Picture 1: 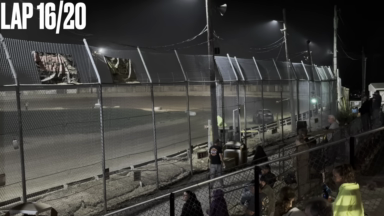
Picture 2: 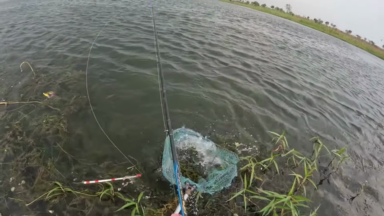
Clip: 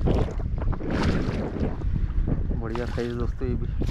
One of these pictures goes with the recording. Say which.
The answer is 2